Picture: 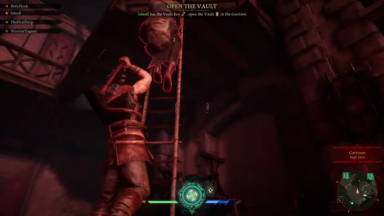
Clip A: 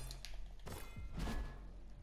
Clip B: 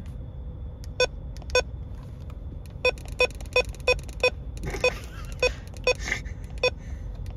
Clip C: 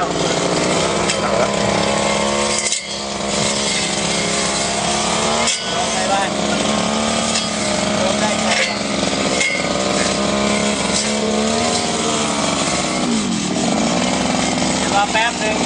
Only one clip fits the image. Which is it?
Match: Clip A